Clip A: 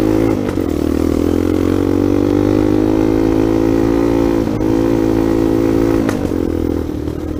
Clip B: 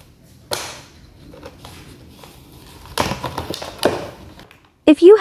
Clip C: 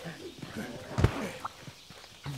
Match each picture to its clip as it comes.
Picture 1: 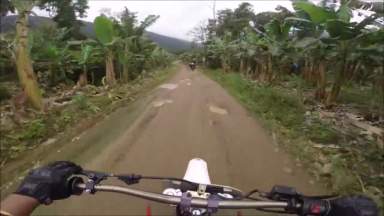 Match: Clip A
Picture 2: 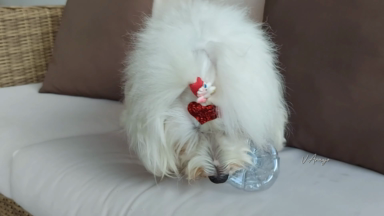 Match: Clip B